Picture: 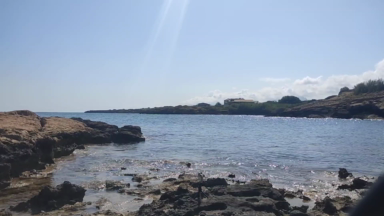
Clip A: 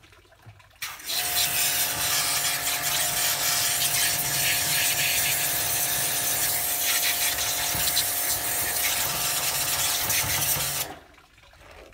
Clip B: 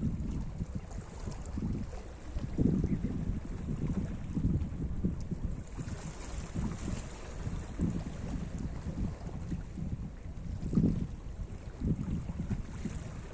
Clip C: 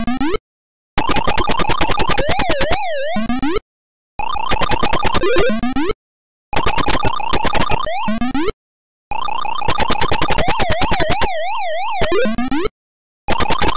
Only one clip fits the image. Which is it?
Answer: B